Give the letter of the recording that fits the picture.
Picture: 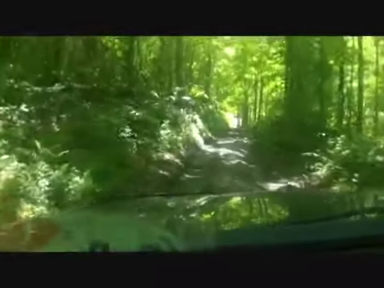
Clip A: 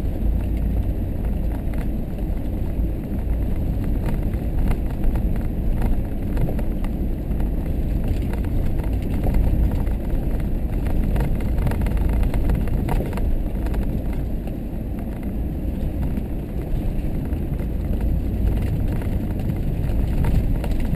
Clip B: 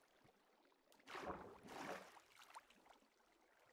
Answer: A